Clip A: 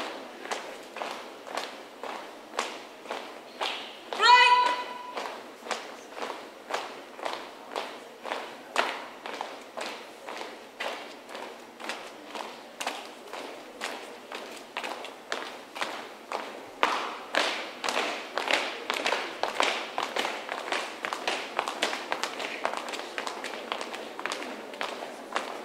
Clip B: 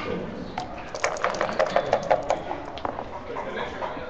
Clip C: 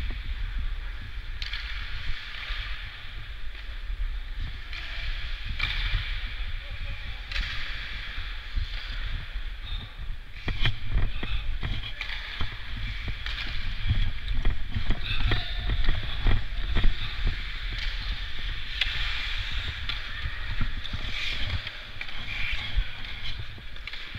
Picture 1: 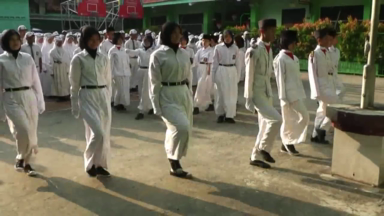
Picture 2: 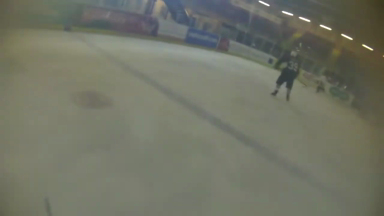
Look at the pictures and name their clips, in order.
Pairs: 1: A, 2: C